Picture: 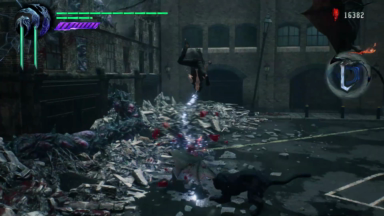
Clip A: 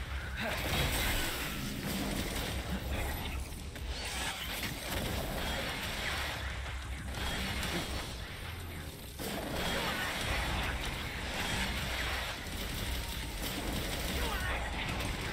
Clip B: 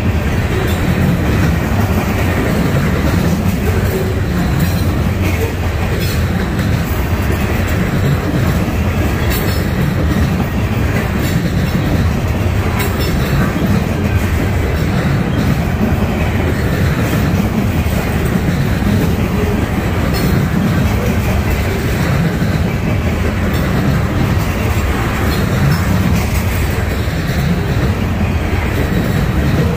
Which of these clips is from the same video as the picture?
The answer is A